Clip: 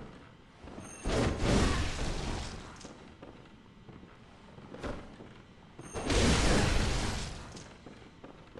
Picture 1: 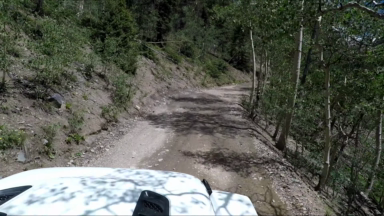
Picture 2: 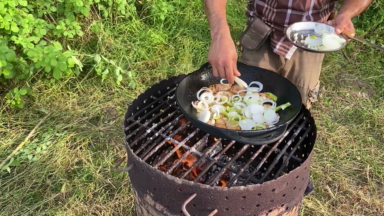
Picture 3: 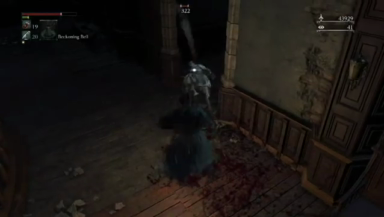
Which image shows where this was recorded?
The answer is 3